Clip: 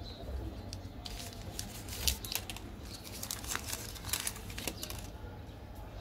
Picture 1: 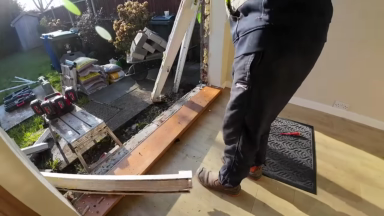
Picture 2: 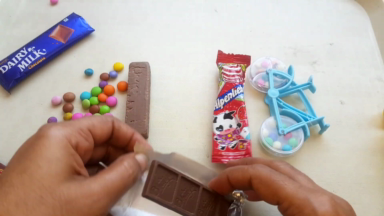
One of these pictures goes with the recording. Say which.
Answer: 2